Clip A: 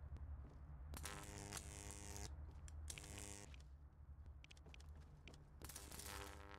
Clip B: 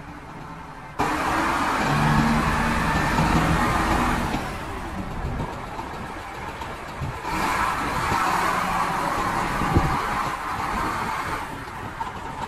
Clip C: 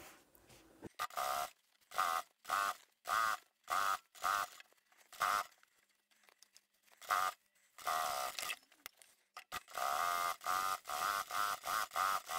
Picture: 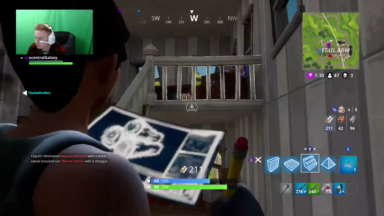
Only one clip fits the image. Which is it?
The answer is A